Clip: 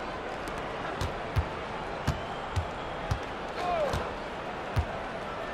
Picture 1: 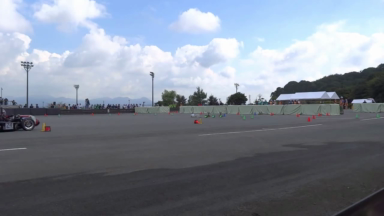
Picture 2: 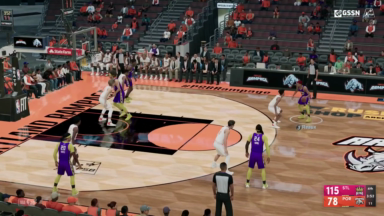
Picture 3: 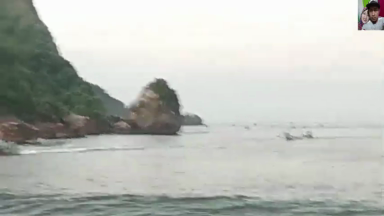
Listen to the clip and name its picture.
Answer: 2